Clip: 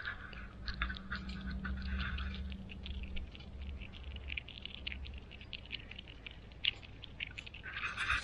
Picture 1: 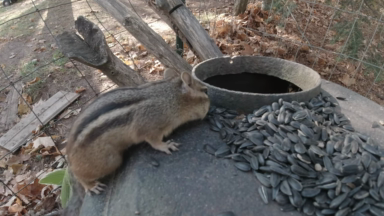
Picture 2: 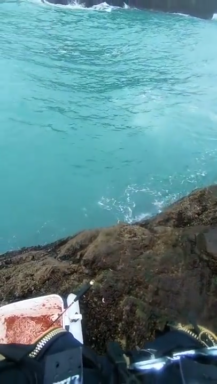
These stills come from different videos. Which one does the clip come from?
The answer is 1